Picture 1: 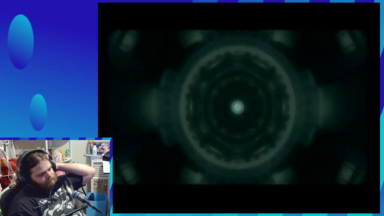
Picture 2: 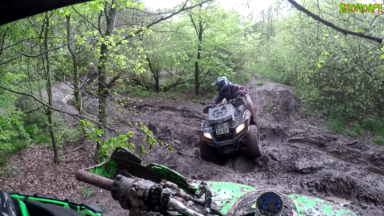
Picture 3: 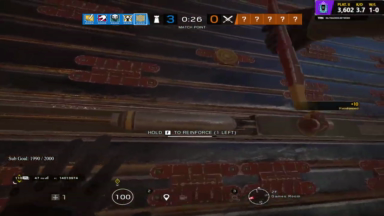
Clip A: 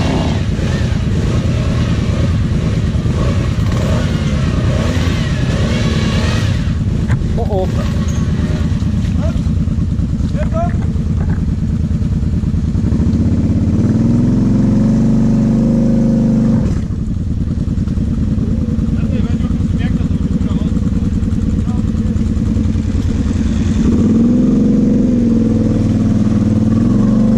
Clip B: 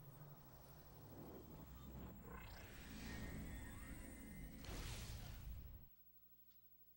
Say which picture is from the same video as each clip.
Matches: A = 2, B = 1